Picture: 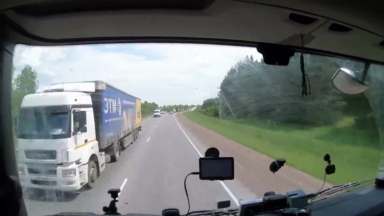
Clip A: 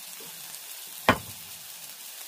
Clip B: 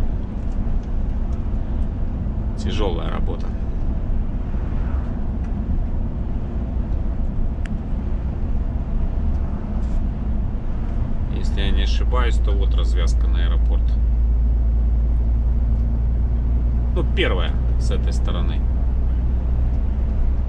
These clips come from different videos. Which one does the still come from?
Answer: B